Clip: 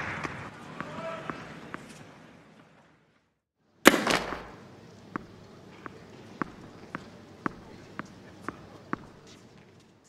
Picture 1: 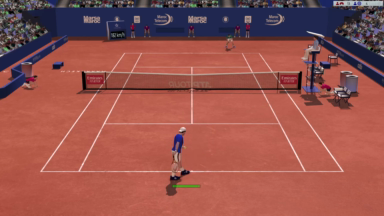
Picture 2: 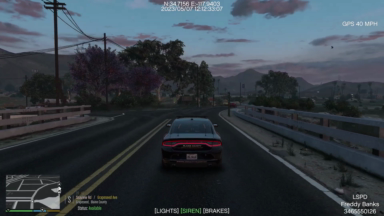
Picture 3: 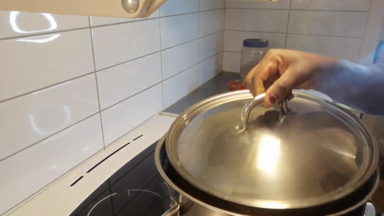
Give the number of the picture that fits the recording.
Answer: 1